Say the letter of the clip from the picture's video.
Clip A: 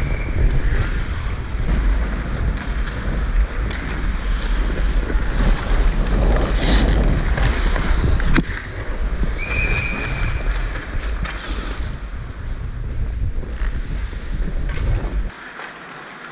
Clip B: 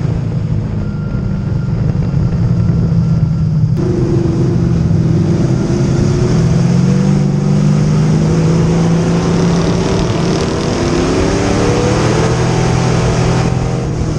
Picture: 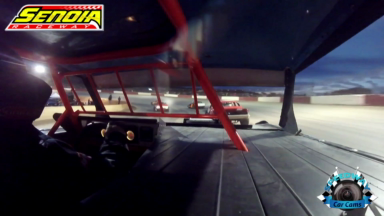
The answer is B